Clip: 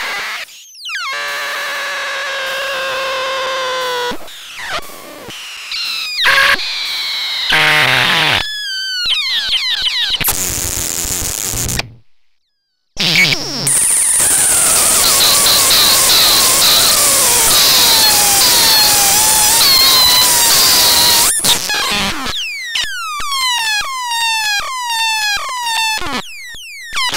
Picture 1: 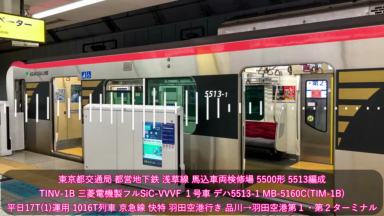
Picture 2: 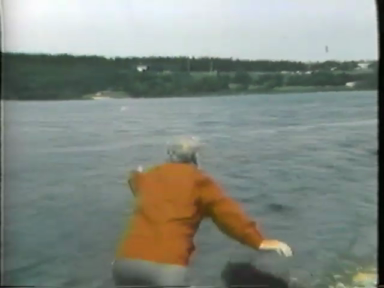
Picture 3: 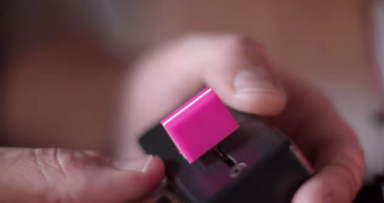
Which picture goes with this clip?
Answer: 3